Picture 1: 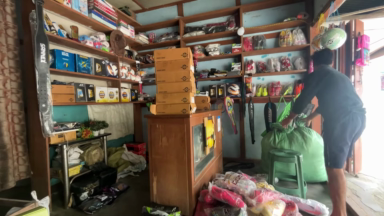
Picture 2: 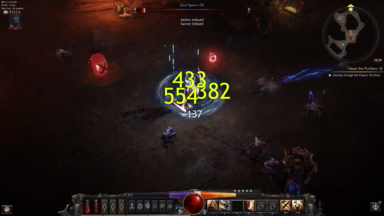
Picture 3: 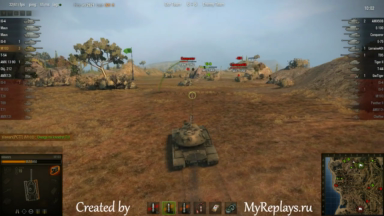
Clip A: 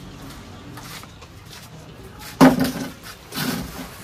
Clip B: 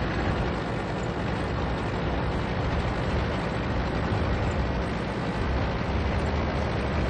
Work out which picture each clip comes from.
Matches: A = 1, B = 3